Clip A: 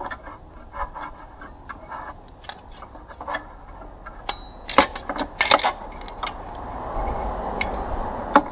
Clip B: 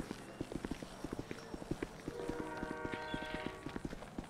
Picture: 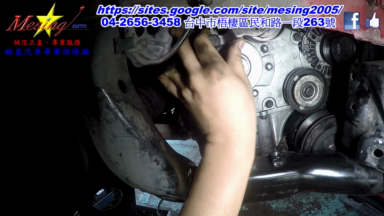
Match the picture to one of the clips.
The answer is A